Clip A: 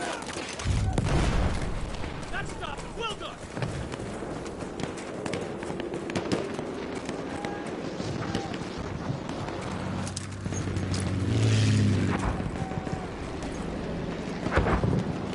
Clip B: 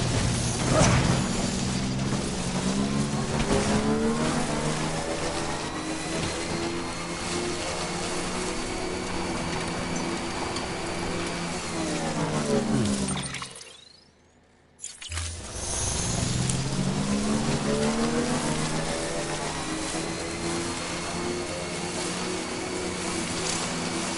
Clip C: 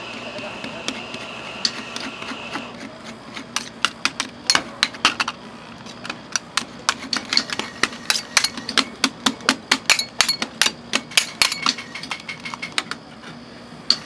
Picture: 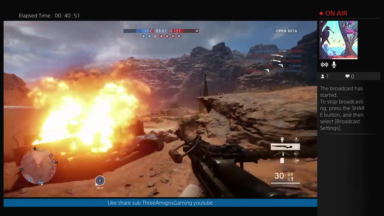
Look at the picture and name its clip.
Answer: A